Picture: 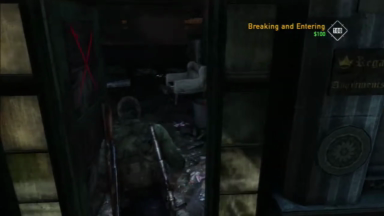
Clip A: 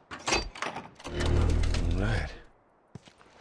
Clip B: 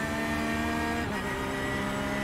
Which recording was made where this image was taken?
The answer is A